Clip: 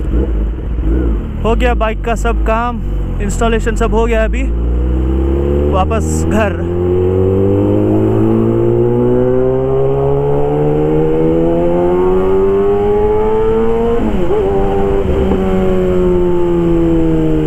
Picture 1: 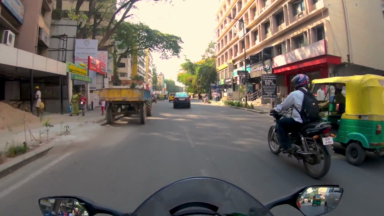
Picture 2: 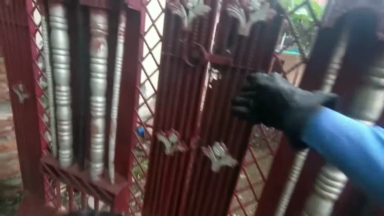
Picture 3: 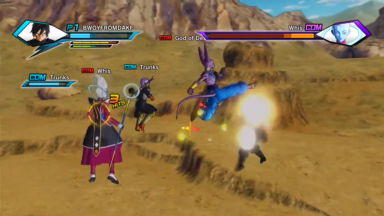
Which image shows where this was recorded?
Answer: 1